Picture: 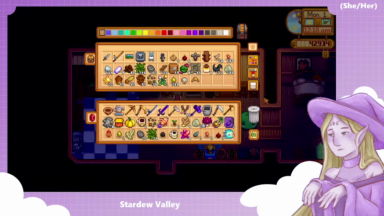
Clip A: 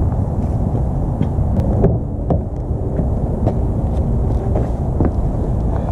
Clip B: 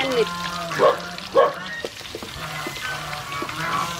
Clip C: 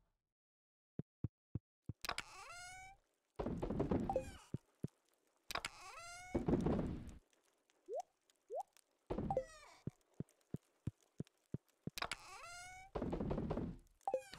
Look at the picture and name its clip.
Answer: C